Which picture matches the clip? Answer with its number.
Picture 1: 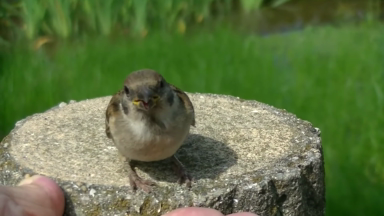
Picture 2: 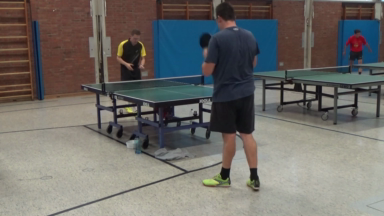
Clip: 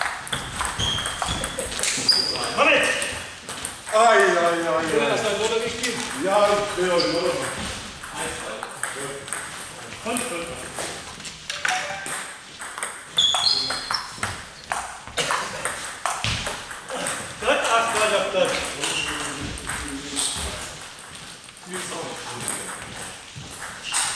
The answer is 2